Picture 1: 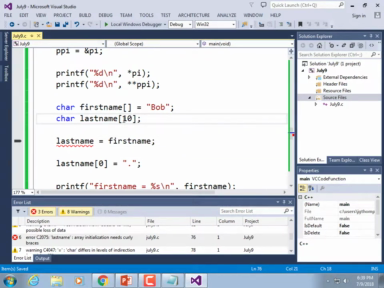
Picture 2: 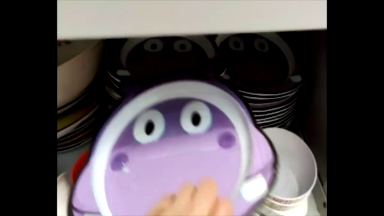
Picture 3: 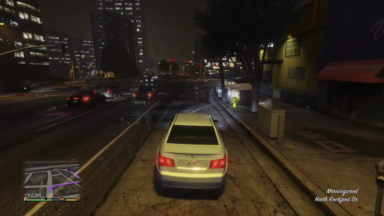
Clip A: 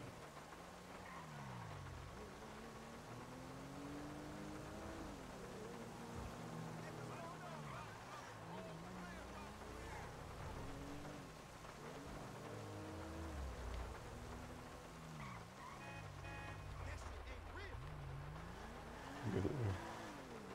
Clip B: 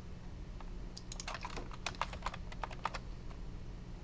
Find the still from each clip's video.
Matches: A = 3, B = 1